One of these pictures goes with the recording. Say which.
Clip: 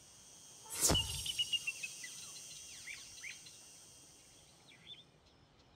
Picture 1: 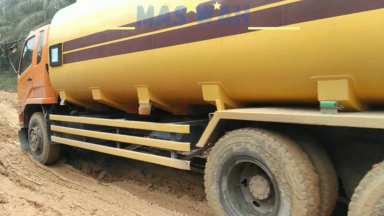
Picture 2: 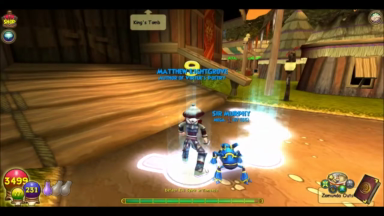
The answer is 2